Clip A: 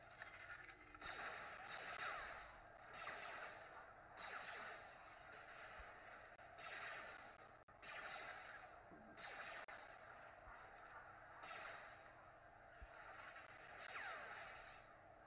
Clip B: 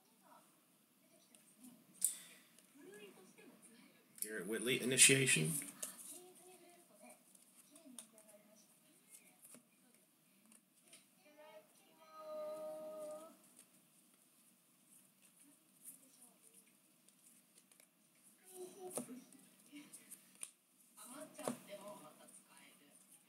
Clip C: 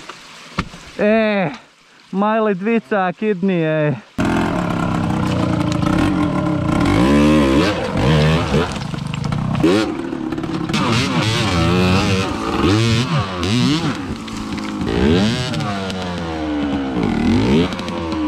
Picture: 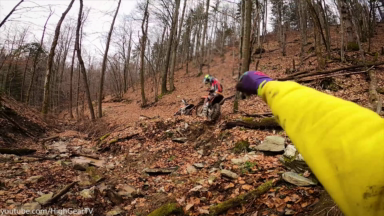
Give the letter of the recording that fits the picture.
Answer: C